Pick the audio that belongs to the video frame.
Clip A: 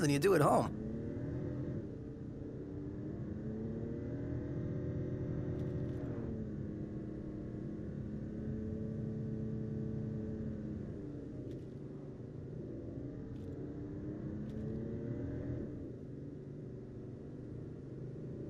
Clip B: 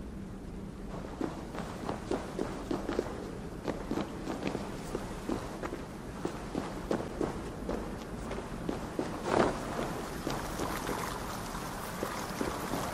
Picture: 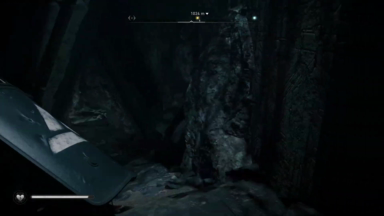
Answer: B